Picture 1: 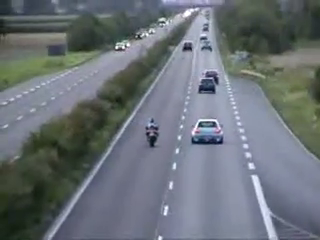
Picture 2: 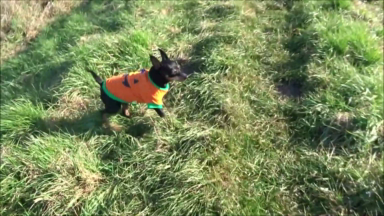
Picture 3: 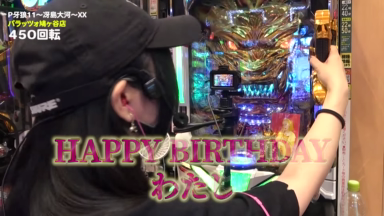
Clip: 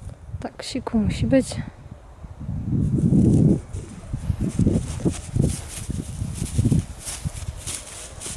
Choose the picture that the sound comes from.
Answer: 2